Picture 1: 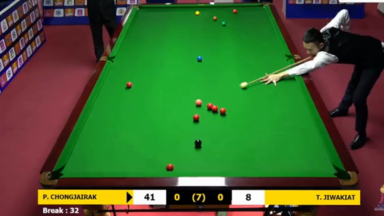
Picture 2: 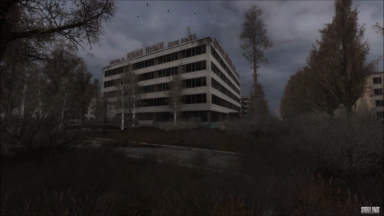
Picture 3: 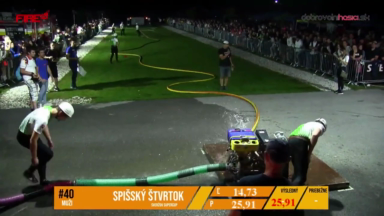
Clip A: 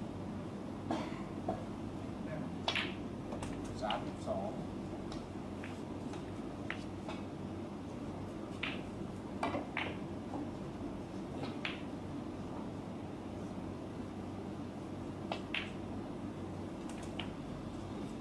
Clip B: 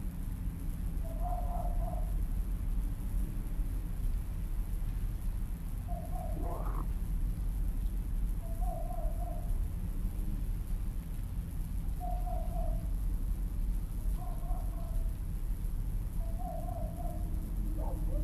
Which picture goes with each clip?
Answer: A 1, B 2